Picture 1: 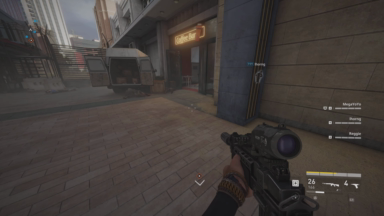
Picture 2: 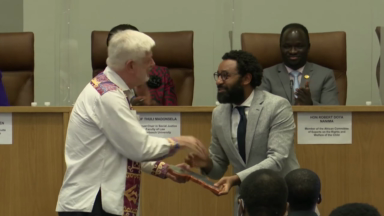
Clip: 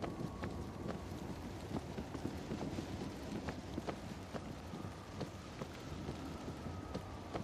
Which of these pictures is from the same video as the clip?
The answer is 1